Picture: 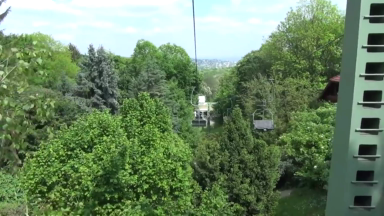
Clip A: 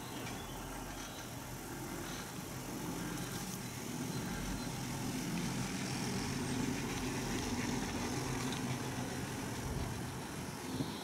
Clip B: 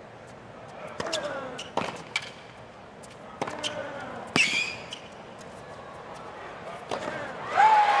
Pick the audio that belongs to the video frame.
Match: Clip A